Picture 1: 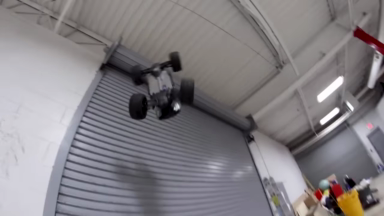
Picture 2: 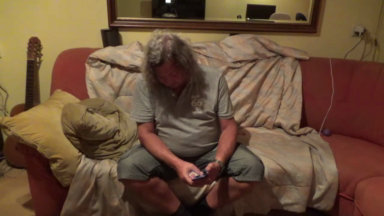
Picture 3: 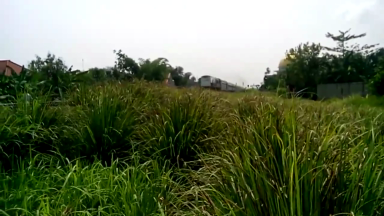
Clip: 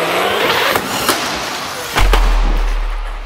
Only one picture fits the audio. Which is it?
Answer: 1